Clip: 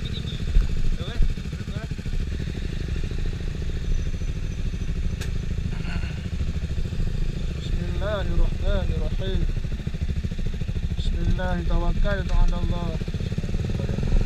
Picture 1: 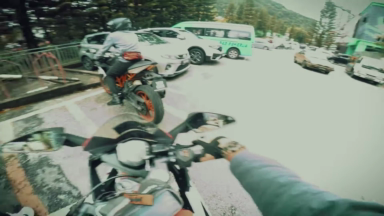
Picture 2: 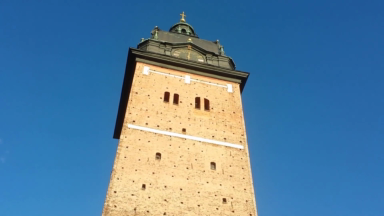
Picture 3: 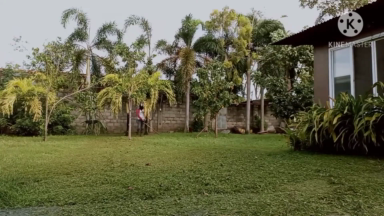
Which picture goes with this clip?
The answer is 1